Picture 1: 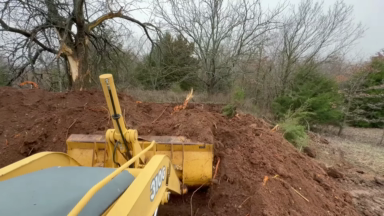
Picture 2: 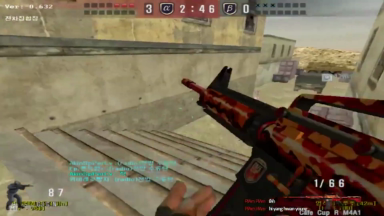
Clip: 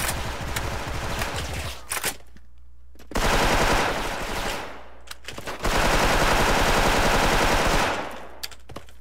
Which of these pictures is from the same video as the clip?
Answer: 2